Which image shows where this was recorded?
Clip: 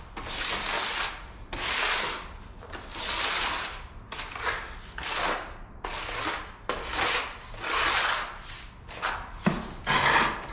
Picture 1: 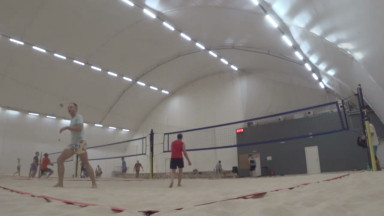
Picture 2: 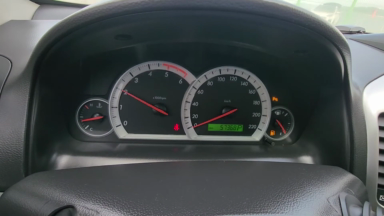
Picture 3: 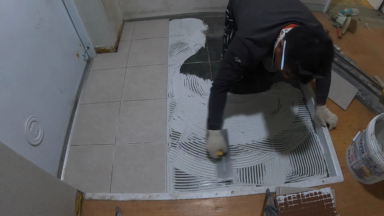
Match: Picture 3